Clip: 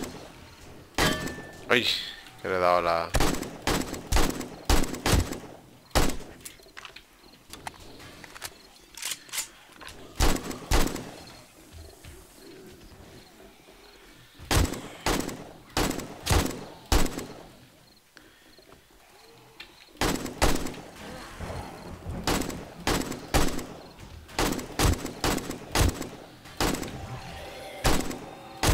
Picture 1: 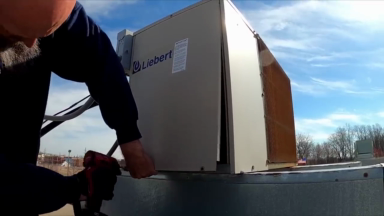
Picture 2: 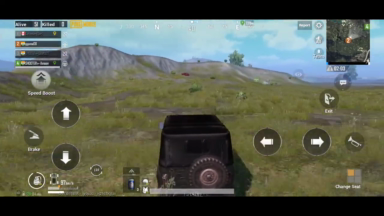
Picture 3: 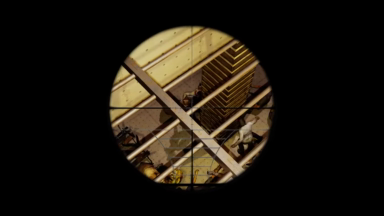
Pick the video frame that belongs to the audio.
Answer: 3